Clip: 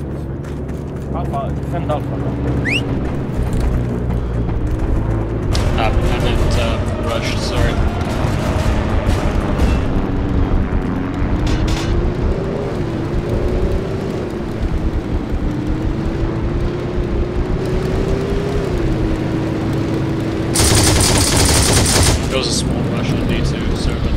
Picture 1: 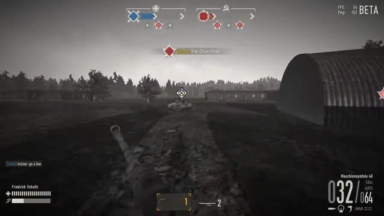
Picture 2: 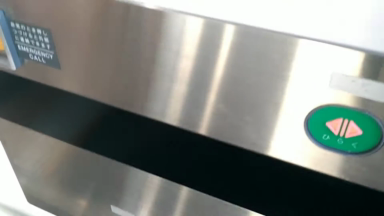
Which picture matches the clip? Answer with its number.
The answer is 1